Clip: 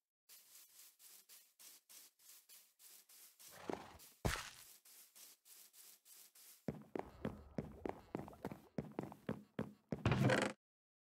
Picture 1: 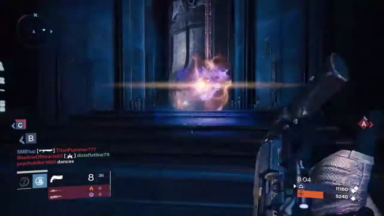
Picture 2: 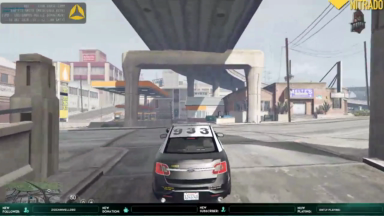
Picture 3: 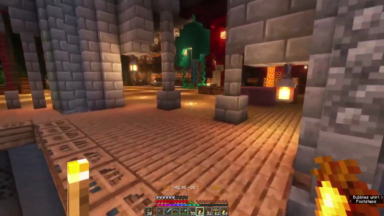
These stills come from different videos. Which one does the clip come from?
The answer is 3